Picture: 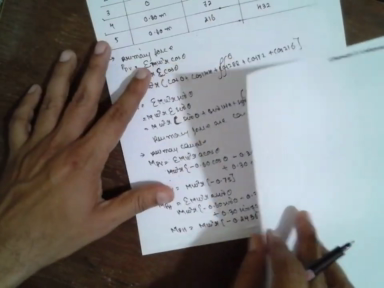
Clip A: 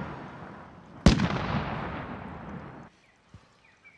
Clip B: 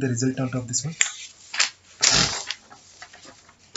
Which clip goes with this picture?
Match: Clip B